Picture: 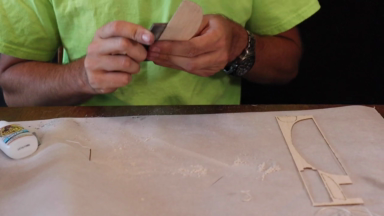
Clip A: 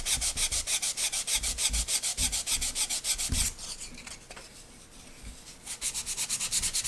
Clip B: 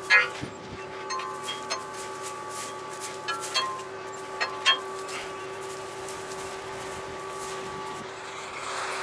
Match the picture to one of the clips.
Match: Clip A